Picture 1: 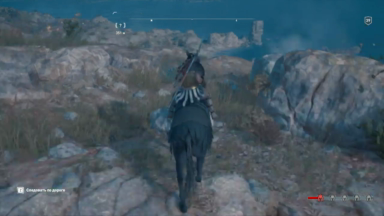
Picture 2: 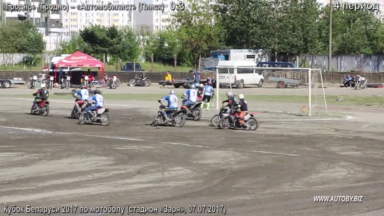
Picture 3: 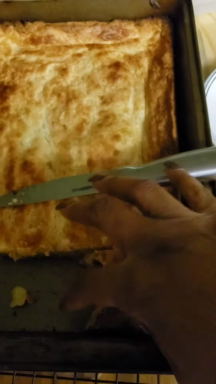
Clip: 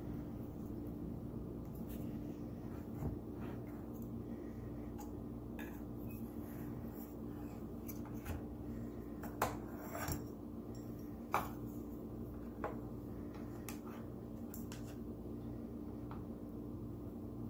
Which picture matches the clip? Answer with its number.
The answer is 3